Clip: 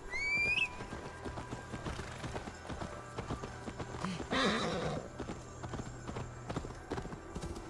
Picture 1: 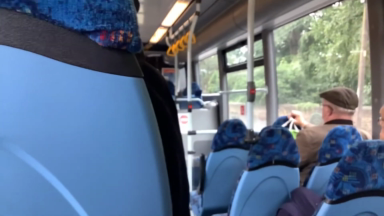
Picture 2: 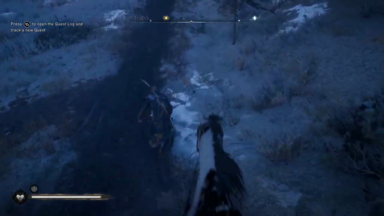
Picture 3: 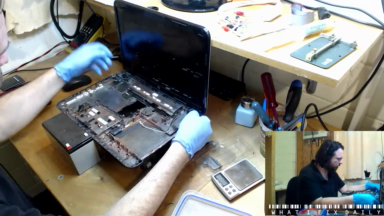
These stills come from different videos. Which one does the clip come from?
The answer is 2